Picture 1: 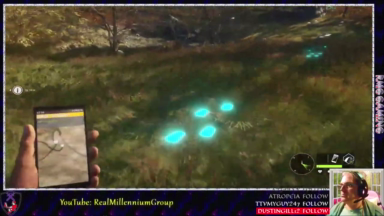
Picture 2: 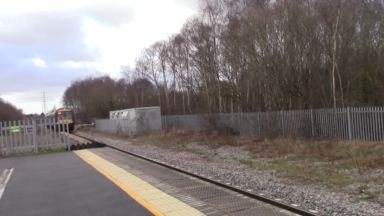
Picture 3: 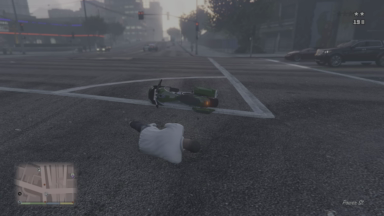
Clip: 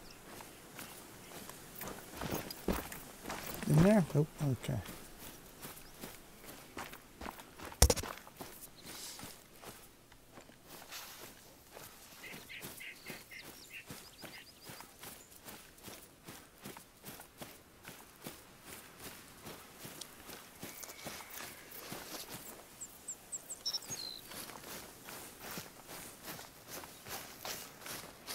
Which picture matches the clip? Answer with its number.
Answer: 1